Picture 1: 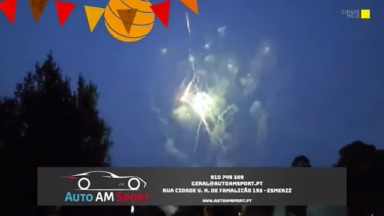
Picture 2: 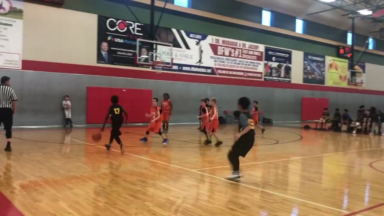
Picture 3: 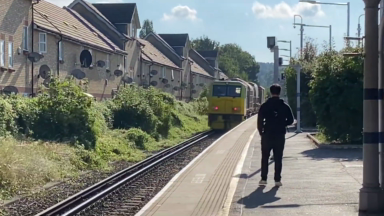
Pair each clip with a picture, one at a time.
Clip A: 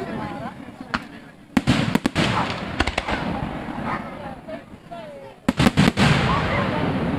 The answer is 1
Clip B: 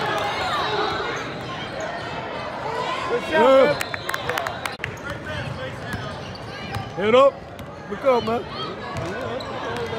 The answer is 2